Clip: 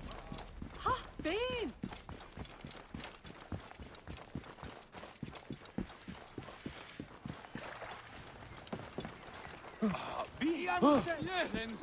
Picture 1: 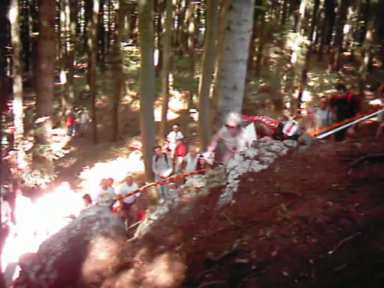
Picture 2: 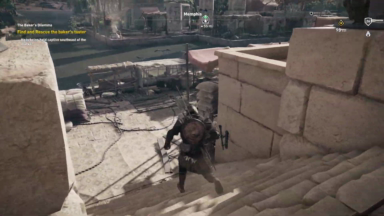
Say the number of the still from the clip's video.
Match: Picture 2